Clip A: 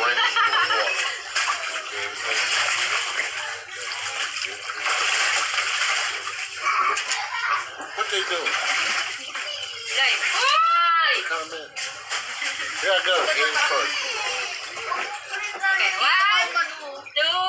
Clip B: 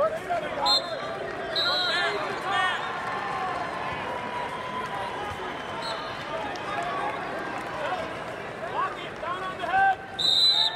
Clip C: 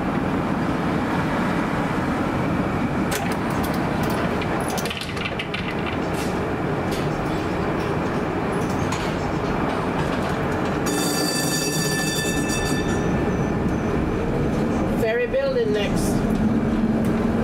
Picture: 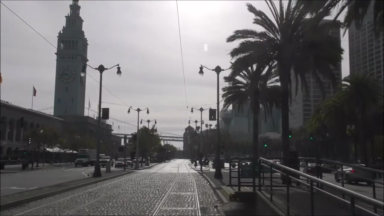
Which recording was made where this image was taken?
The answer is C